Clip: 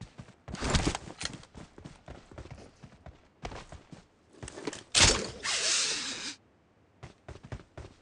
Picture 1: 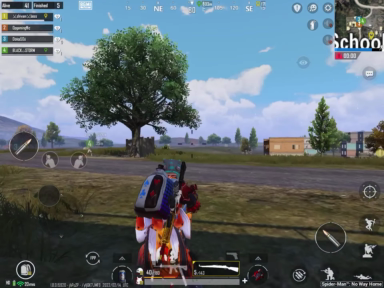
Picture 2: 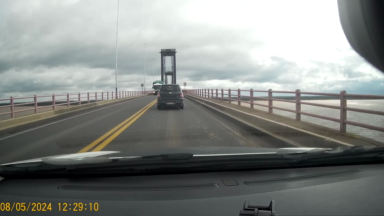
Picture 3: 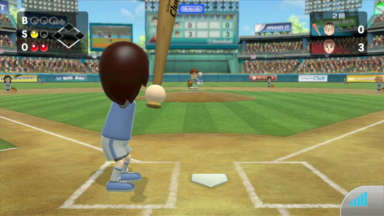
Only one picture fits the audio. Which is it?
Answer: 1